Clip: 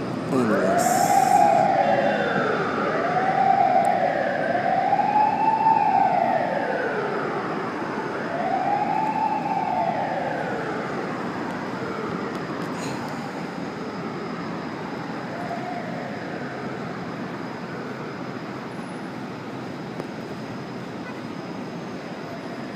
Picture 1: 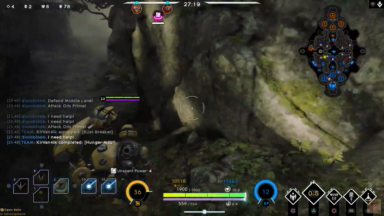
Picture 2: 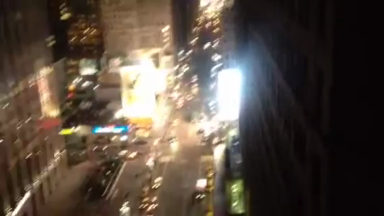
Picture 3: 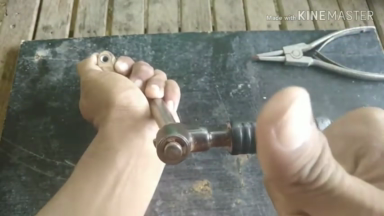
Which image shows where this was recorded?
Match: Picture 2